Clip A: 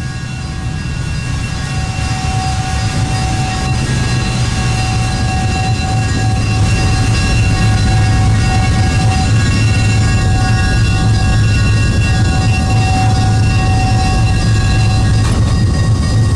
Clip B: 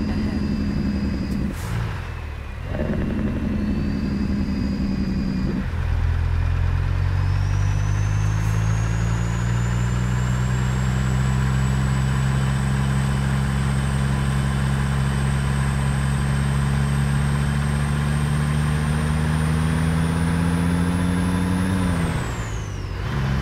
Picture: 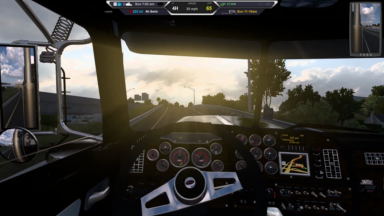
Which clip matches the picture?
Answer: B